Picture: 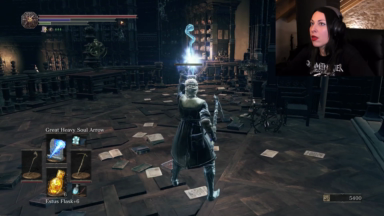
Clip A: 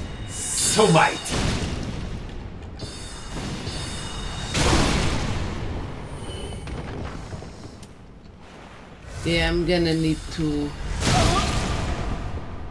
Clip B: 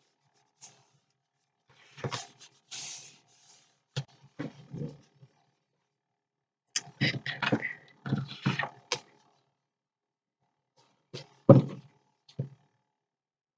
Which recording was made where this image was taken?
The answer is A